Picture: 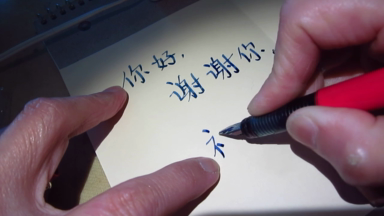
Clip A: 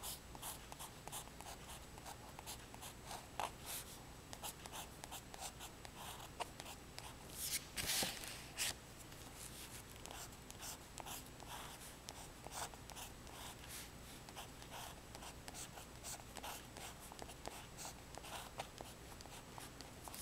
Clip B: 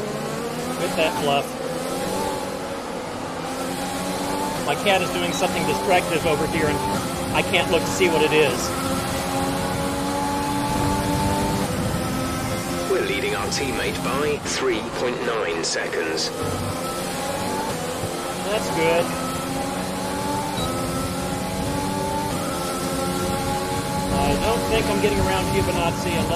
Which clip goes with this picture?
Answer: A